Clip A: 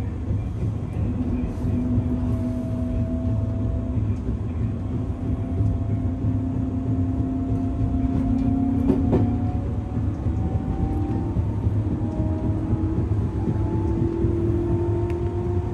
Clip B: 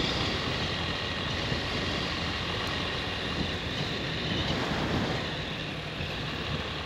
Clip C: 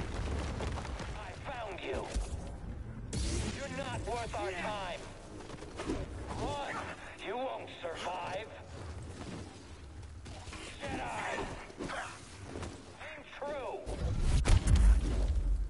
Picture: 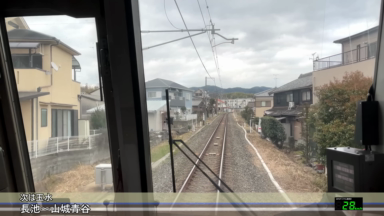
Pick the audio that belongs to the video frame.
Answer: A